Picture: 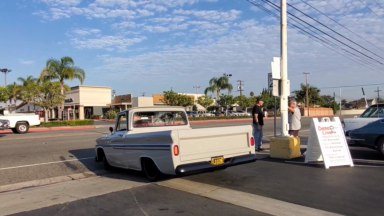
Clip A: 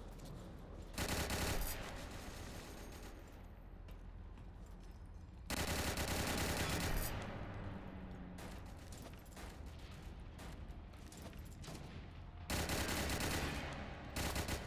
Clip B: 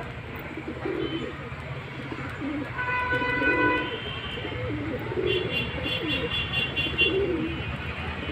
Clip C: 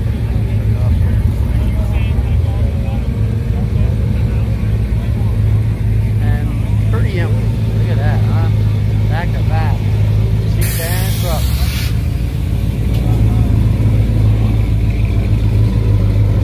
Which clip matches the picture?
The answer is C